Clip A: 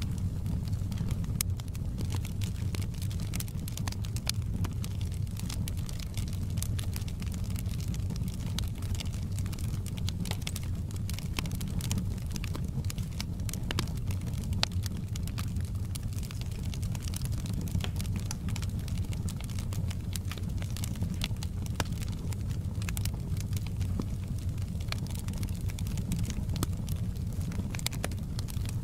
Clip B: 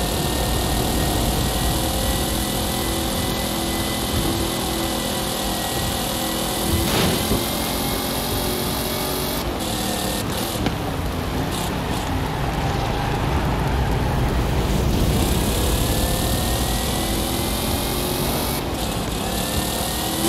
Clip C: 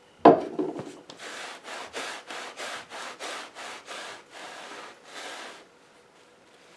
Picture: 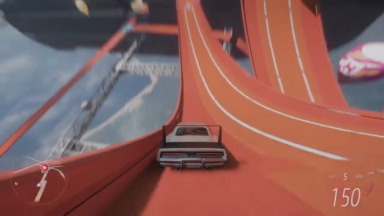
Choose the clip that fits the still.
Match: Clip B